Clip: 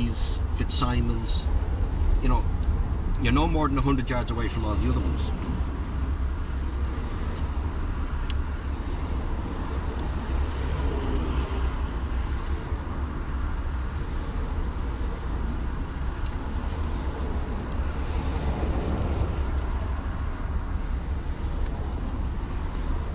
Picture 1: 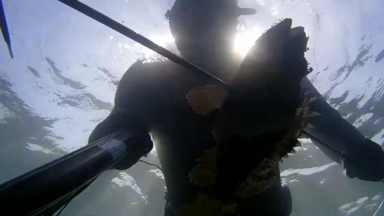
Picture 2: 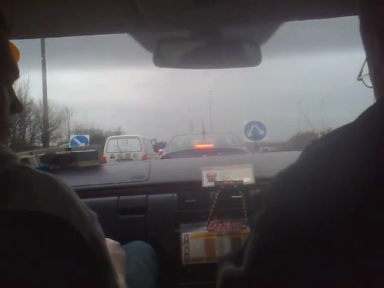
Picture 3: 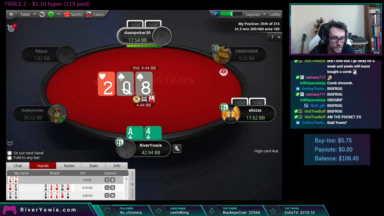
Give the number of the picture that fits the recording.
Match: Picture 2